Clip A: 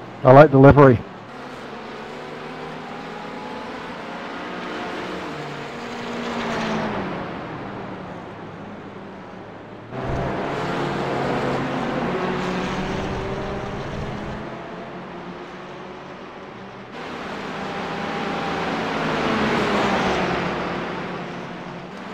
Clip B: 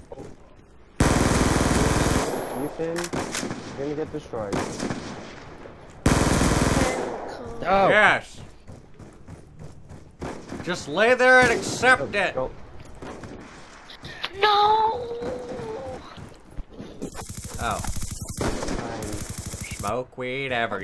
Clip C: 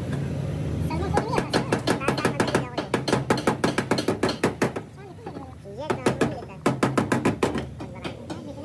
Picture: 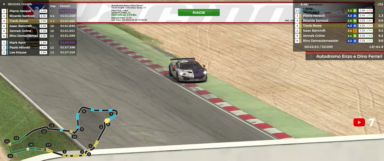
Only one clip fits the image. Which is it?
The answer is A